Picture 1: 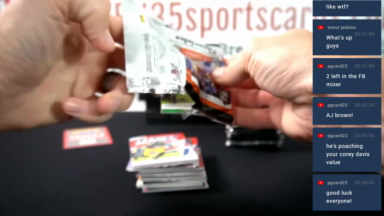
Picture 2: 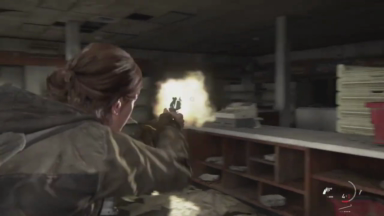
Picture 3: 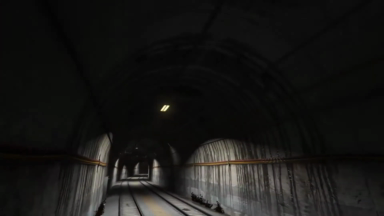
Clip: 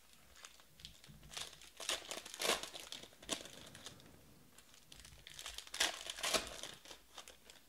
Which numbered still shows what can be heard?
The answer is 1